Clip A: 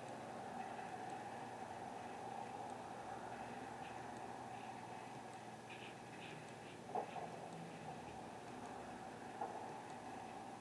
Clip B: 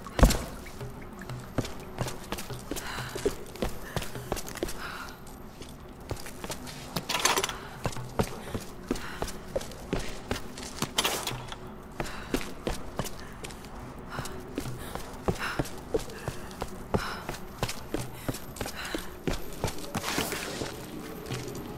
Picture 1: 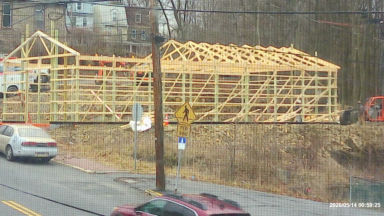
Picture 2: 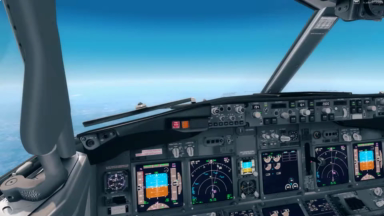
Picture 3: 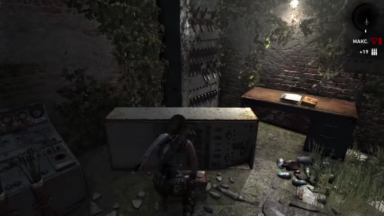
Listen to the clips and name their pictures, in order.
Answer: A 1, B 3